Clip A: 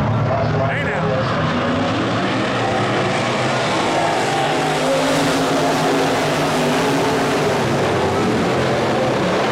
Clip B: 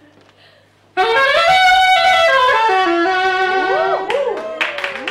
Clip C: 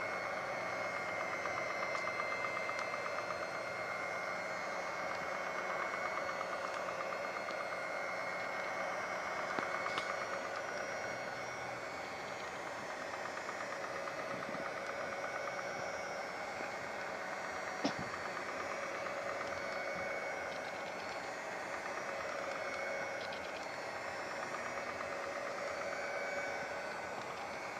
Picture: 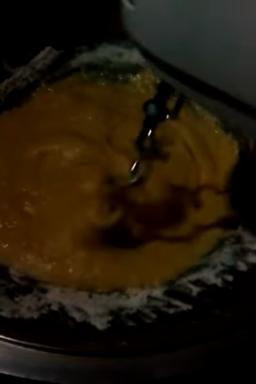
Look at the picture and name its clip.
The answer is C